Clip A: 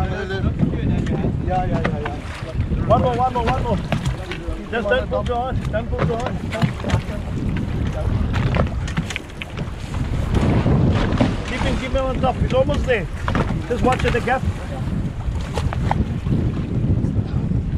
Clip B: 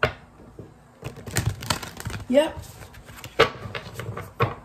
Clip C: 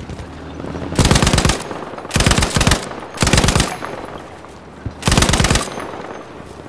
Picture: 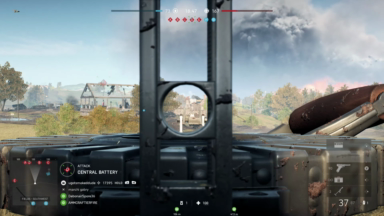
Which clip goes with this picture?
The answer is C